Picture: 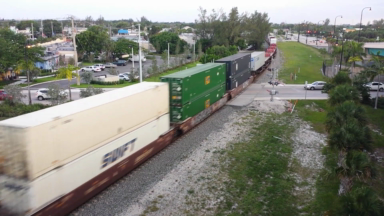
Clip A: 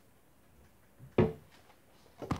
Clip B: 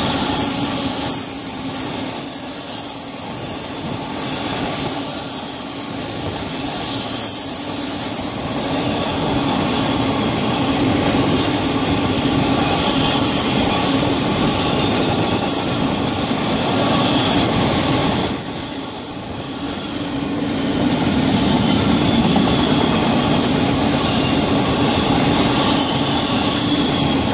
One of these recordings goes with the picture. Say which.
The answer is B